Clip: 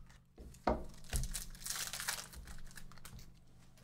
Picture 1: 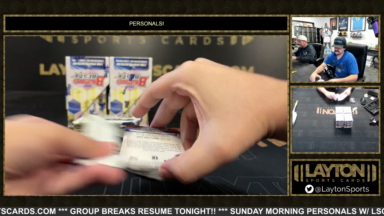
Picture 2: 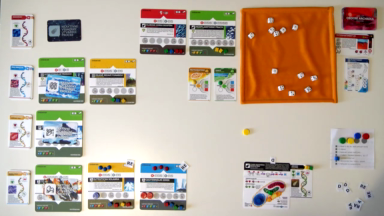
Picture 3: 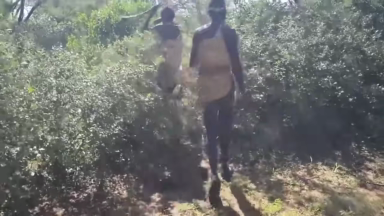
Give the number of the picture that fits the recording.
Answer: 1